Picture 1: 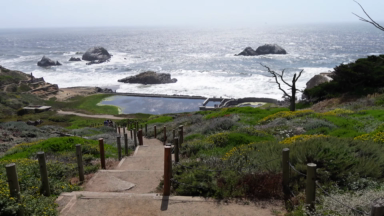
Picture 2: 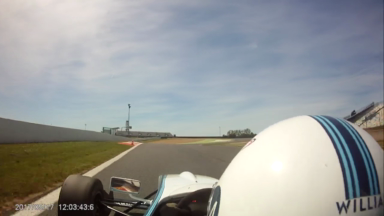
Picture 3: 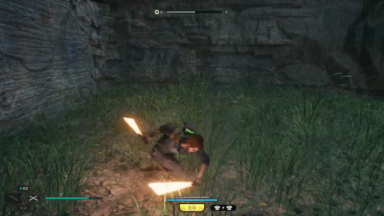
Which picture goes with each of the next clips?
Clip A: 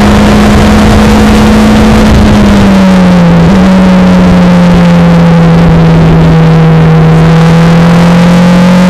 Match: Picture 2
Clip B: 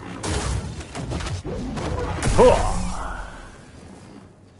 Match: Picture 3